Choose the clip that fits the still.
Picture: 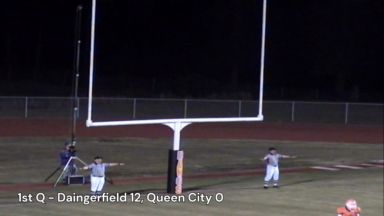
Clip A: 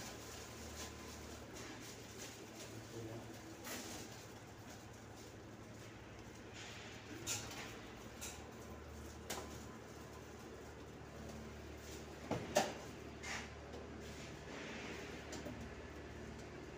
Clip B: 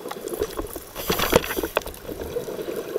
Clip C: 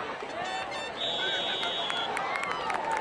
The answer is C